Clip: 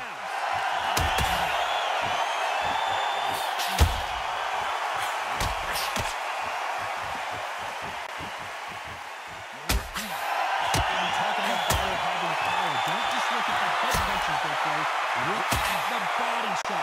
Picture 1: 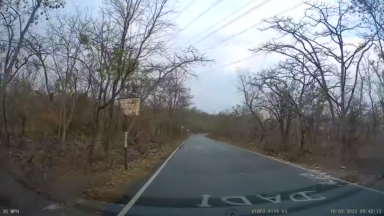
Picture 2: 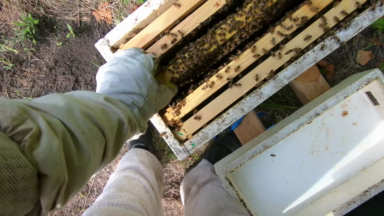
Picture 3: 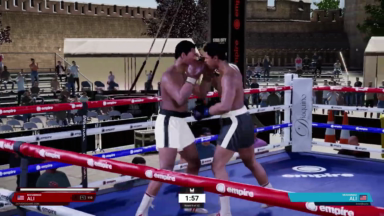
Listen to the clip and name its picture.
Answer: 3